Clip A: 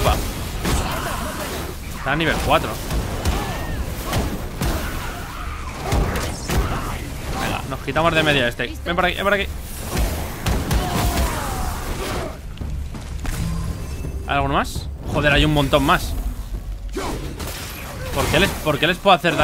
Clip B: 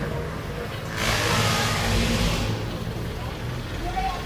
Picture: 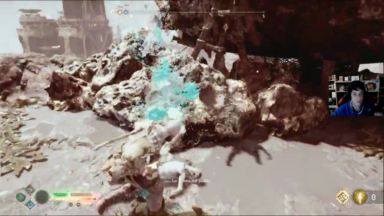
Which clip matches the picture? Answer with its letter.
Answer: A